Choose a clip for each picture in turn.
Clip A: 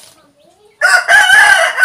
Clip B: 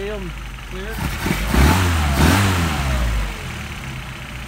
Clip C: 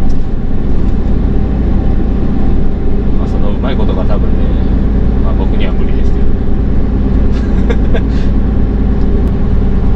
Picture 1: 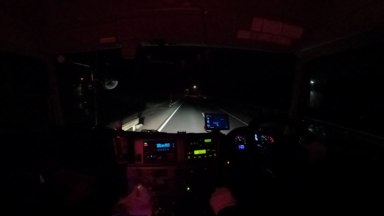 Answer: C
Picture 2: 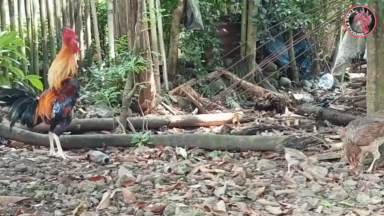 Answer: A